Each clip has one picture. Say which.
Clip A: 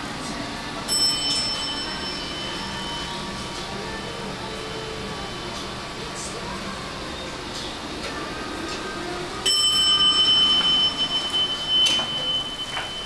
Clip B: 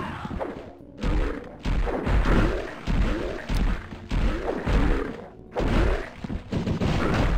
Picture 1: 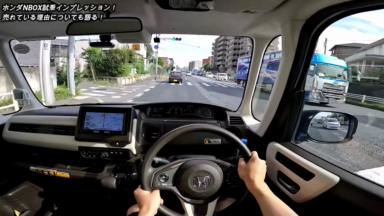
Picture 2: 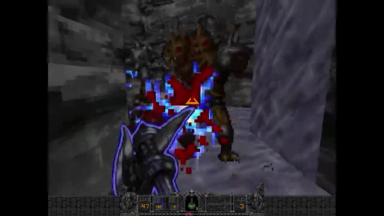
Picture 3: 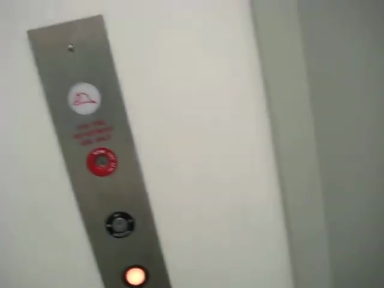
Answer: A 3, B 2